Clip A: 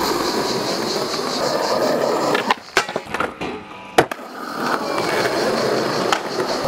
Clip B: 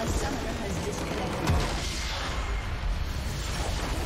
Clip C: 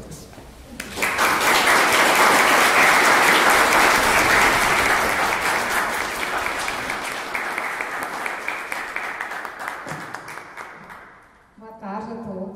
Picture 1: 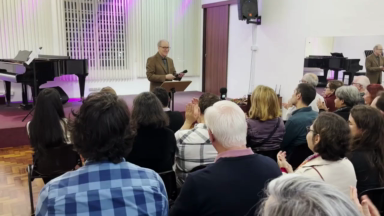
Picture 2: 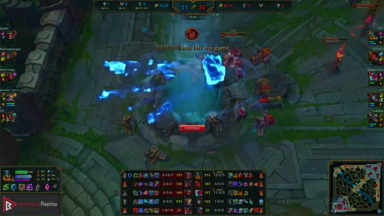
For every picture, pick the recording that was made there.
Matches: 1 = C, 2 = B